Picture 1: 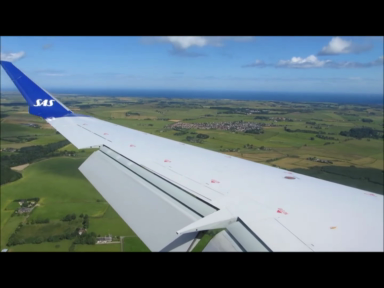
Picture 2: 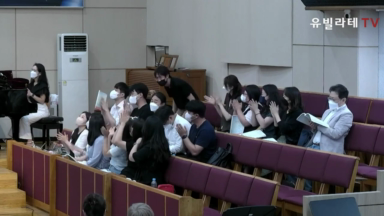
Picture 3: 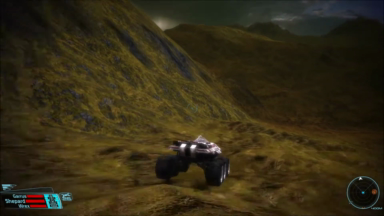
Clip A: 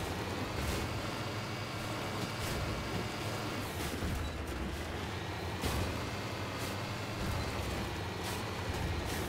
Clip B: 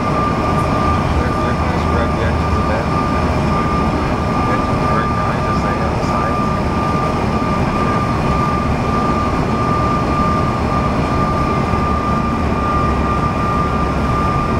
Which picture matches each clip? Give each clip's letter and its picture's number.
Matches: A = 3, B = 1